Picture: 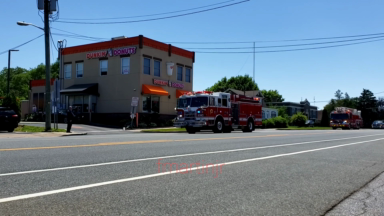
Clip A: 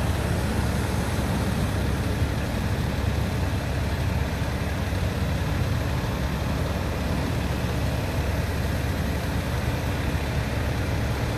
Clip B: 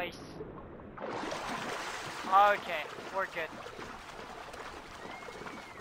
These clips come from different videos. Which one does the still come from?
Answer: A